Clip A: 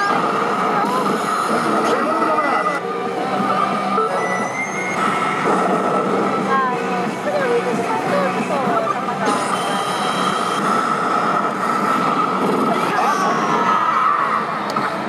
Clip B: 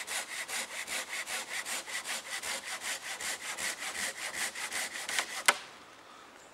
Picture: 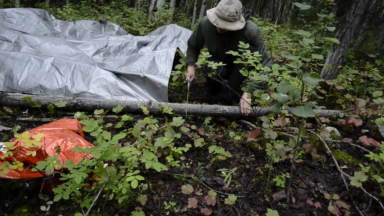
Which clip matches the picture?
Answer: B